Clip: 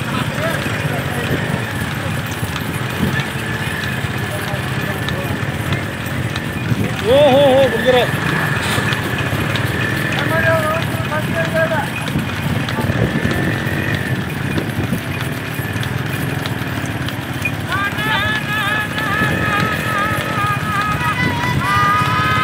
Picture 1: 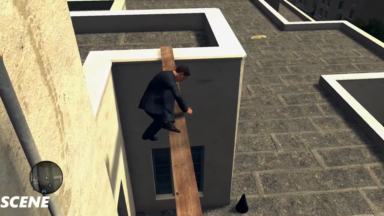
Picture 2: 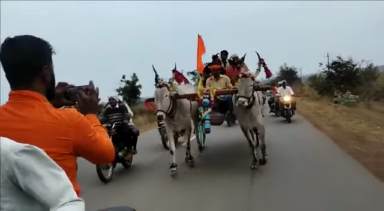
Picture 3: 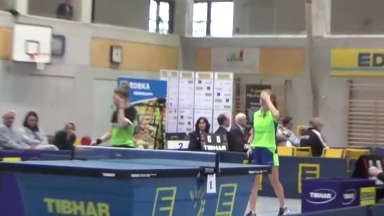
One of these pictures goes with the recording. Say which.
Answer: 2